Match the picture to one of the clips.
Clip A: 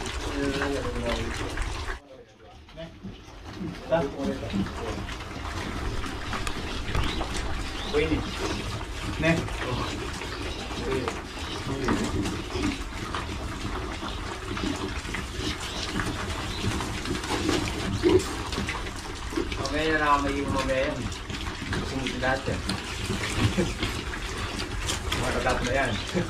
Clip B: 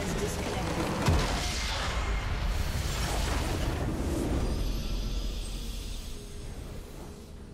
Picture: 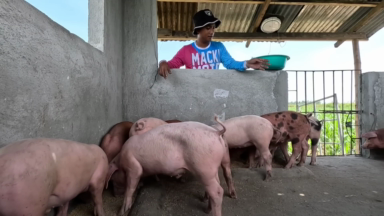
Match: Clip A